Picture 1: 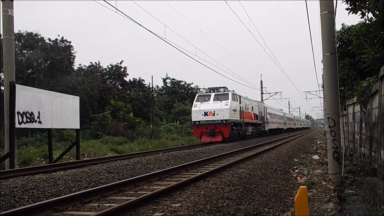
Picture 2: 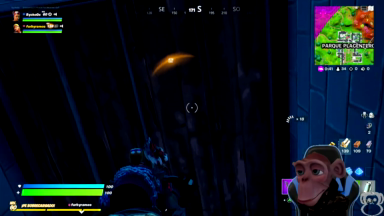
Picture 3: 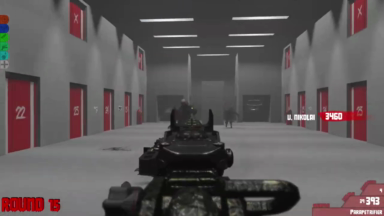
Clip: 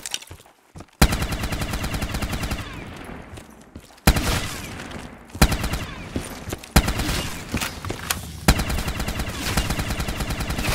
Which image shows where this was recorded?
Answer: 3